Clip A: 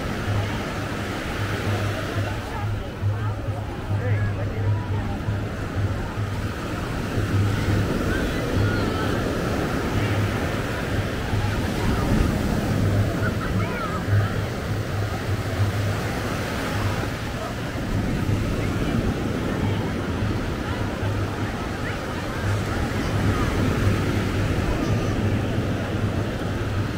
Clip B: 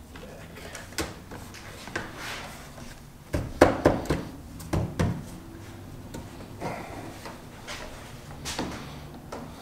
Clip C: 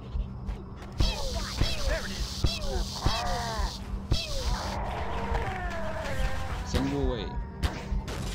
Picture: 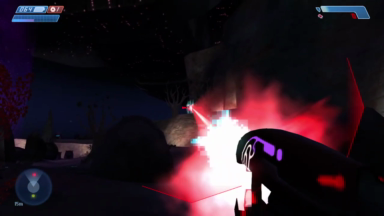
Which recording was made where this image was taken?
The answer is C